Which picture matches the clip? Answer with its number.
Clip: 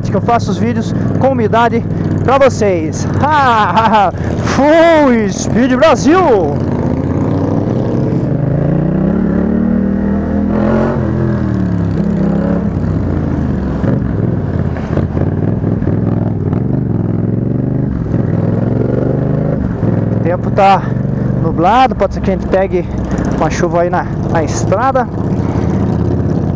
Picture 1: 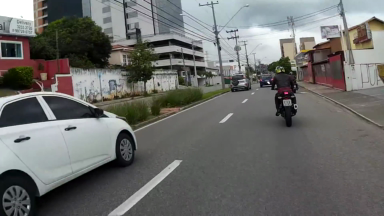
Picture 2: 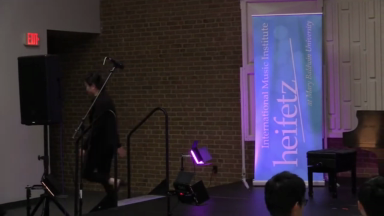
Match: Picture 1